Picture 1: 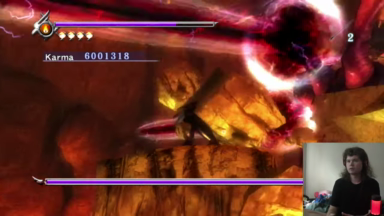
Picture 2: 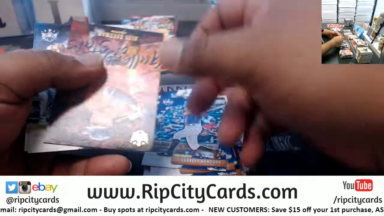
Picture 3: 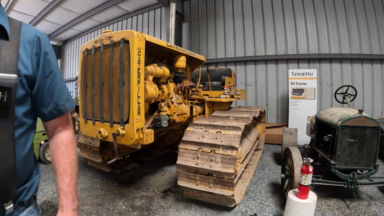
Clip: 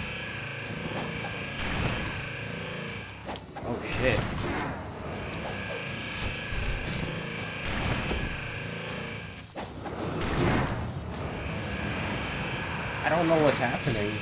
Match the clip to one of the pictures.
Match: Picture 1